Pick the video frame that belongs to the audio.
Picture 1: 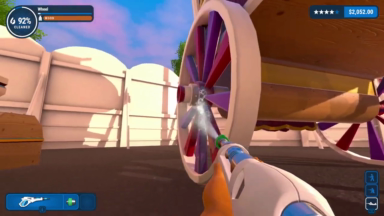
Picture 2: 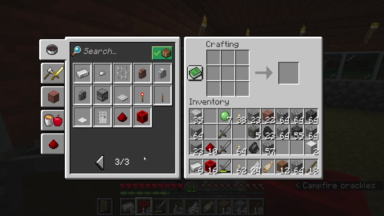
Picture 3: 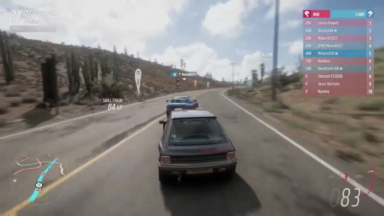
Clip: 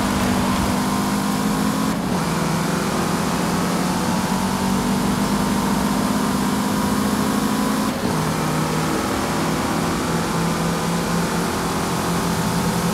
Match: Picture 3